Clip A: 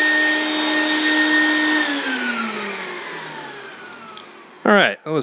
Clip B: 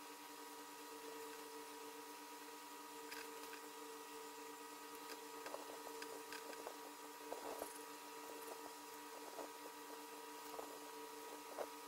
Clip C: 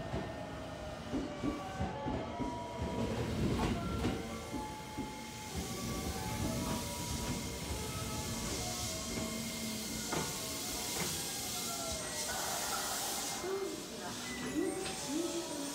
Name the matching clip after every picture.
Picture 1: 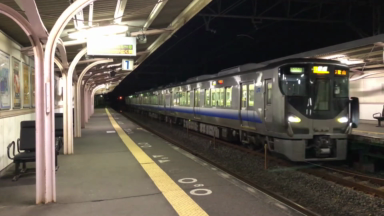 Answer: C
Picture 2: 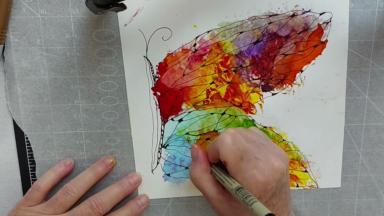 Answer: B